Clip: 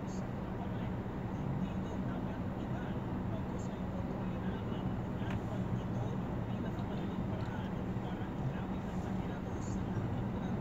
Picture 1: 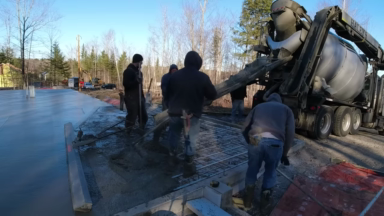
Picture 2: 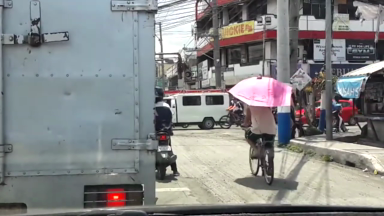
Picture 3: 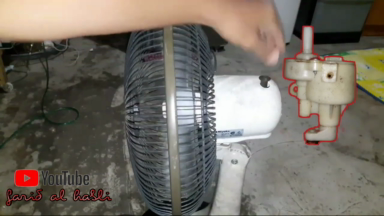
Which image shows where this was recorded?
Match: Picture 2